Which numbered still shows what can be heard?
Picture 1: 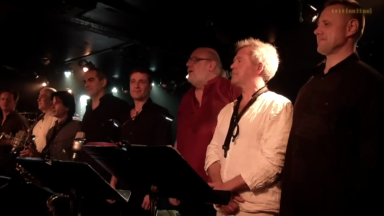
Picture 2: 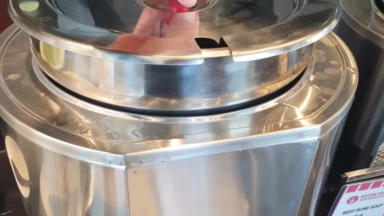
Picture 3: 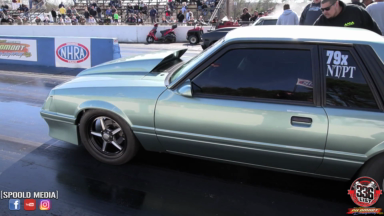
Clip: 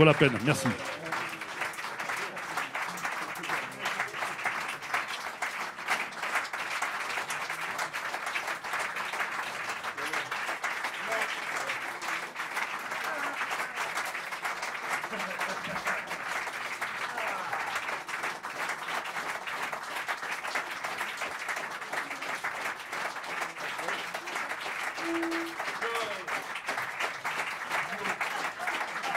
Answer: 1